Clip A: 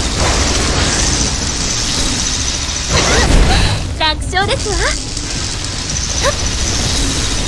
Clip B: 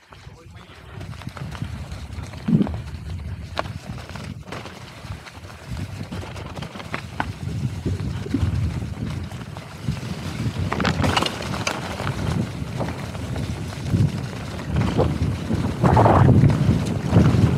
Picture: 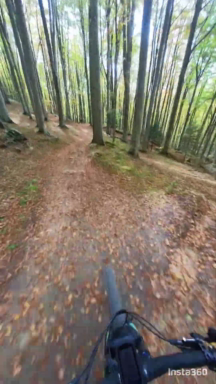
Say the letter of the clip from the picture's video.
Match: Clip B